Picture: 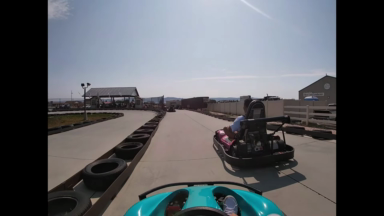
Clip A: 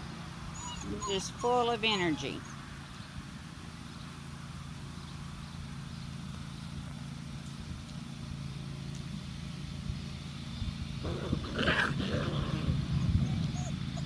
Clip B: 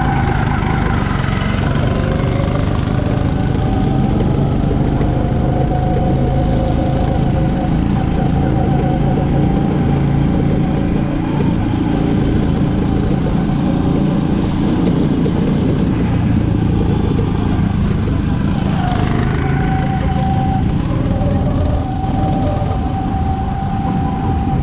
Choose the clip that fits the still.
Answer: B